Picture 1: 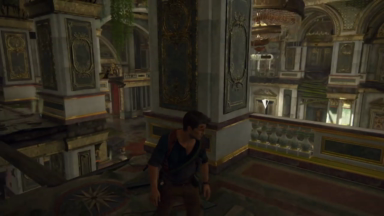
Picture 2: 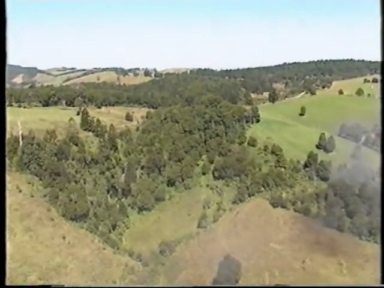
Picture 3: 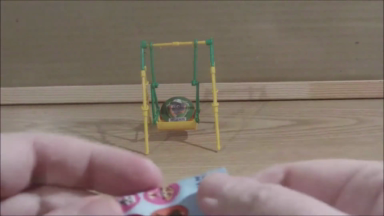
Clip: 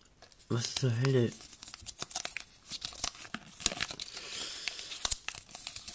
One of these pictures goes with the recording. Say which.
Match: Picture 3